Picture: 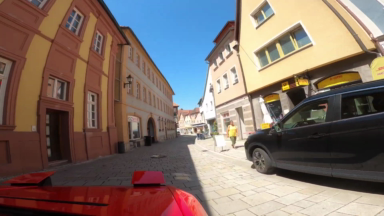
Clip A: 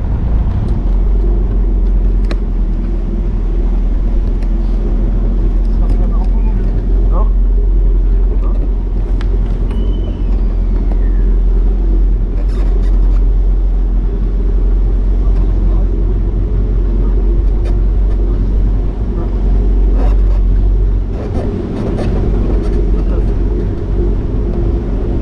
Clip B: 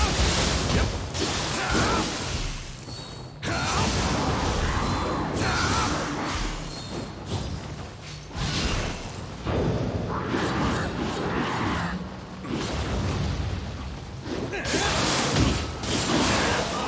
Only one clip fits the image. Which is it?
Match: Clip A